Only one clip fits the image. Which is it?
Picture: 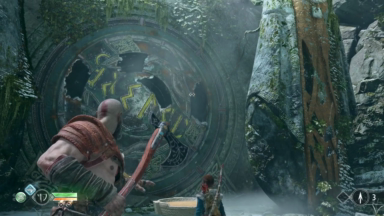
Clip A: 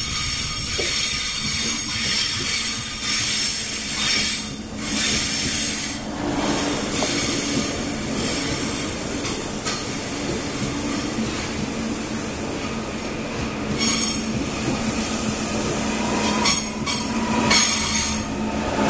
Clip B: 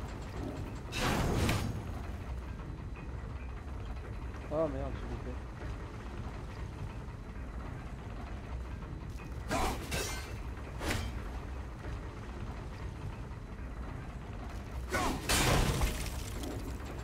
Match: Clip B